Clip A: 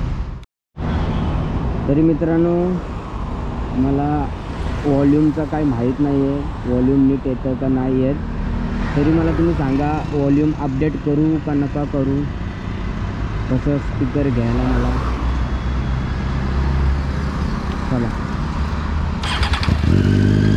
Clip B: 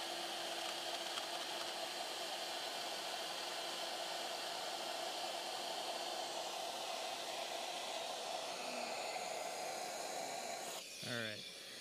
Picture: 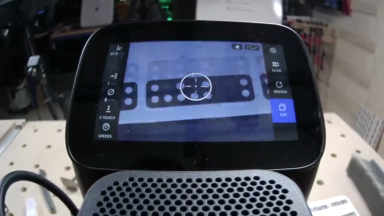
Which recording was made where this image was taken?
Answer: B